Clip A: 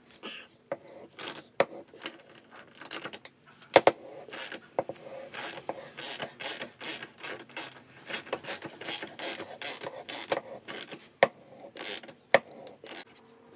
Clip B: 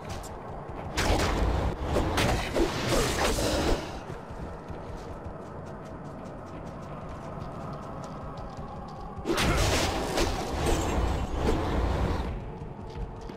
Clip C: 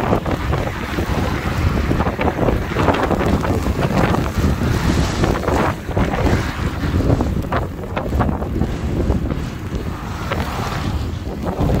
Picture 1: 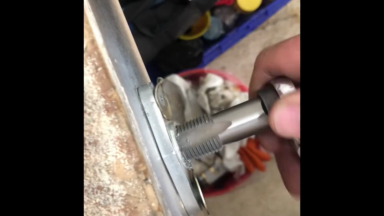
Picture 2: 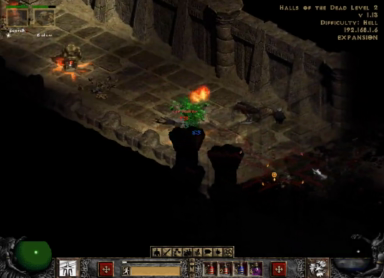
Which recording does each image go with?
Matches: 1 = A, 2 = B